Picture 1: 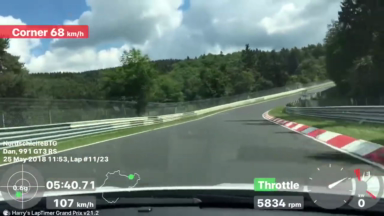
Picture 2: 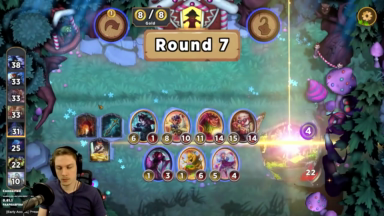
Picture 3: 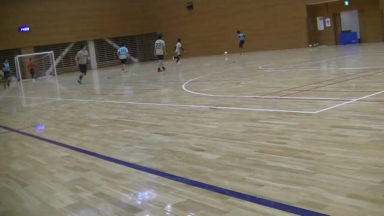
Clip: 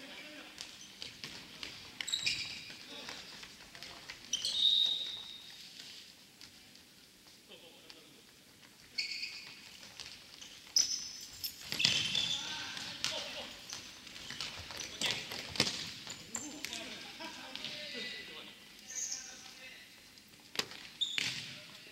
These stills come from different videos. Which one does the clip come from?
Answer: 3